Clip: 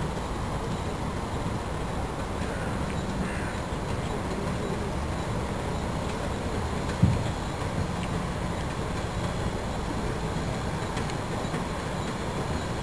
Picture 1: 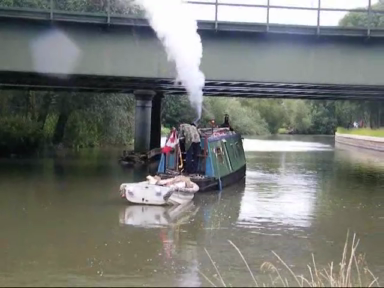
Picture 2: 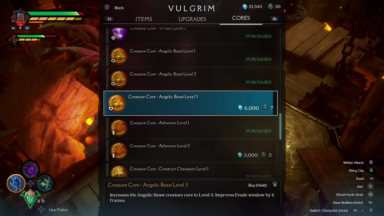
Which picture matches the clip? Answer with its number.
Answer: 1